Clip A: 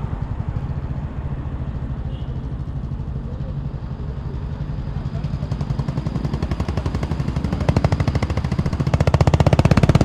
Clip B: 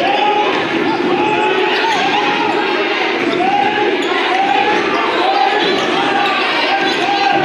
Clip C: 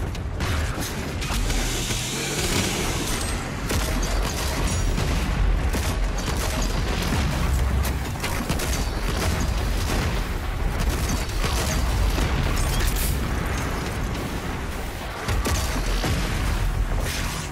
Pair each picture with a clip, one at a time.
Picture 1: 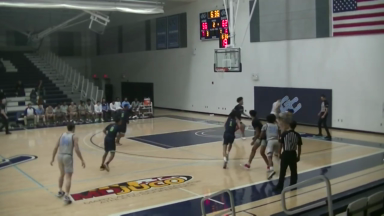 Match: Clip B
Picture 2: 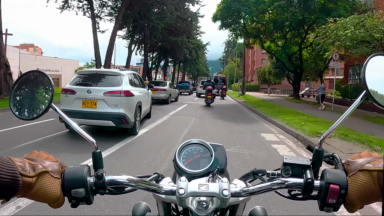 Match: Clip A